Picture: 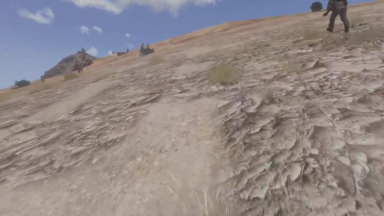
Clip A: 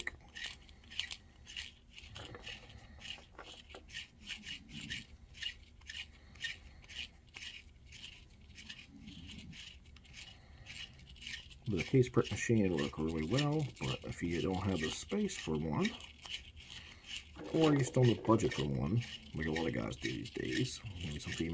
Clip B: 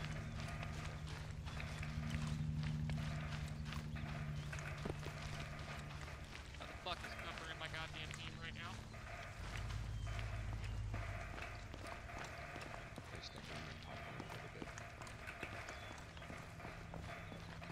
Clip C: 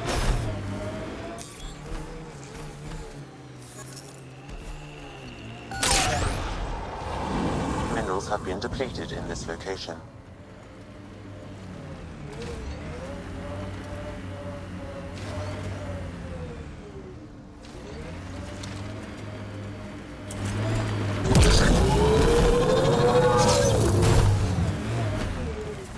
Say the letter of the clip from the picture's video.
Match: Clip B